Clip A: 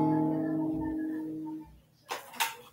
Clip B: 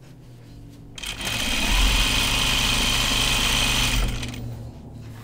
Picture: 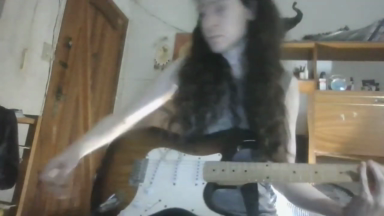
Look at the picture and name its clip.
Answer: A